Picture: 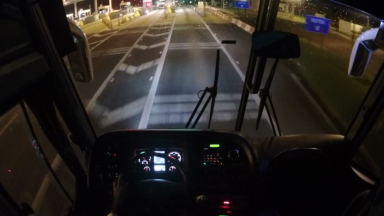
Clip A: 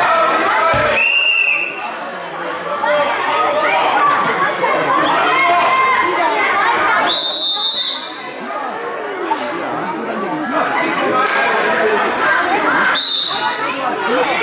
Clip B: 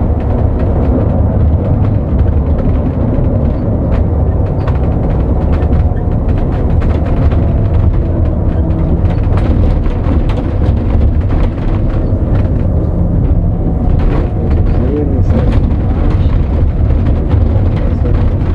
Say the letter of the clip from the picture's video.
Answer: B